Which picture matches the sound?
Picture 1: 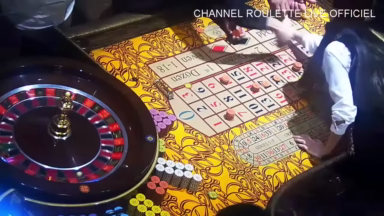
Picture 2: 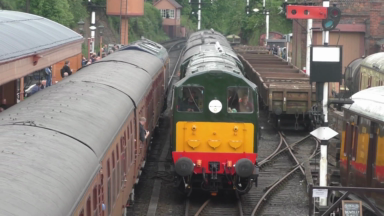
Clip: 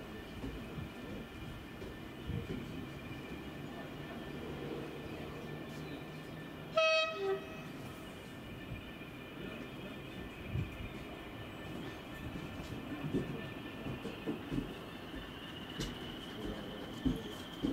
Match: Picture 2